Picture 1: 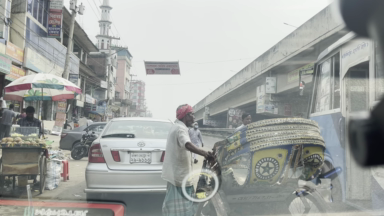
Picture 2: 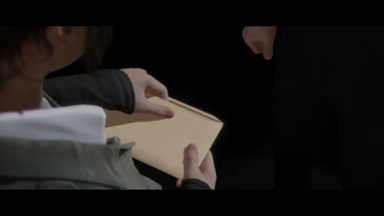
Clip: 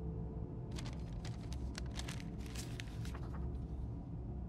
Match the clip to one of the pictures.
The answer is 2